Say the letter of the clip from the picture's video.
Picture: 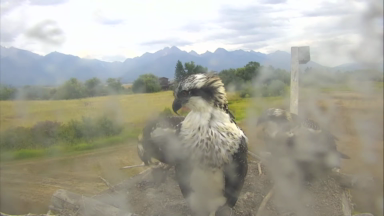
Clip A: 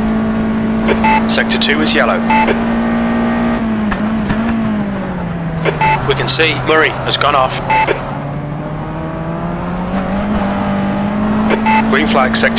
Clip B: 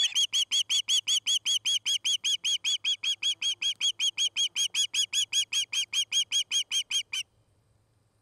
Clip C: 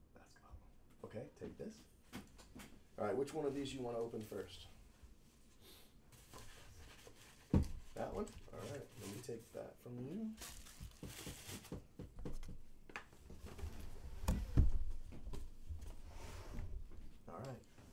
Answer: B